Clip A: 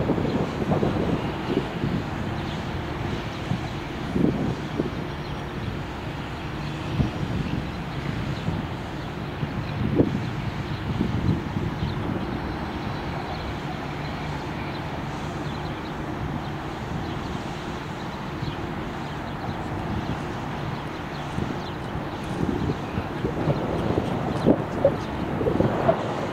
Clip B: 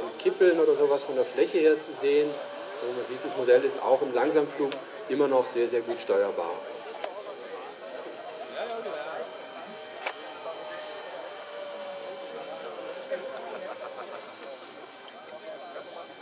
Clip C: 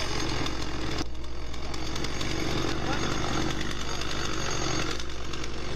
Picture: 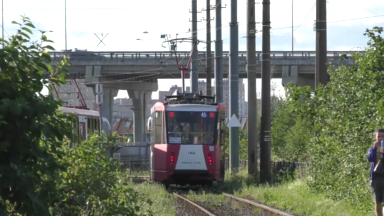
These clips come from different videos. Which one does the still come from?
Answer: A